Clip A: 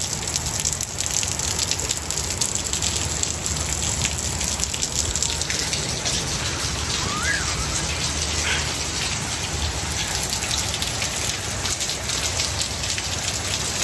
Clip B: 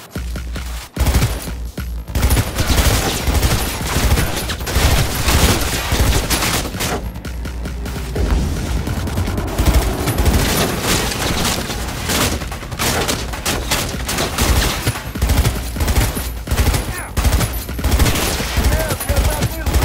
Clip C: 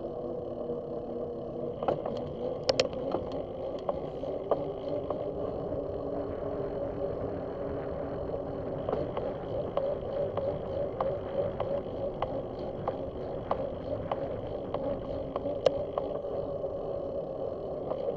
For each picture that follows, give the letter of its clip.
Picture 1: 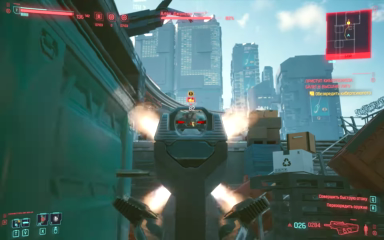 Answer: B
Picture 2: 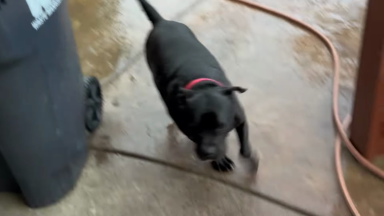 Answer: A